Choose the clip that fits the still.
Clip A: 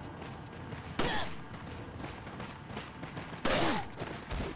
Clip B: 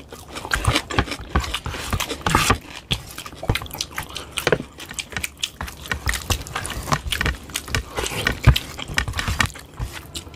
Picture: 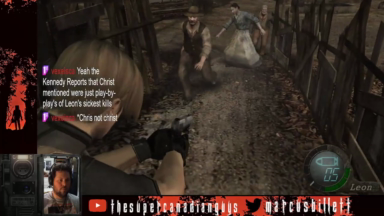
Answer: A